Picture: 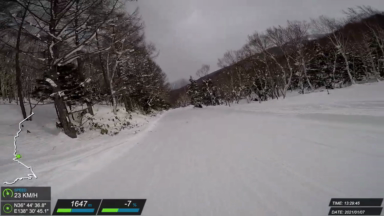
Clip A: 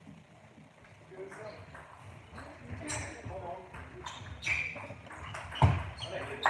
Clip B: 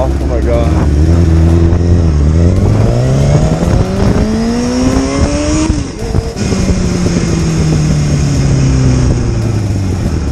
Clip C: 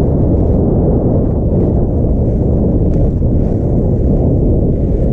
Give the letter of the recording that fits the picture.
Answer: C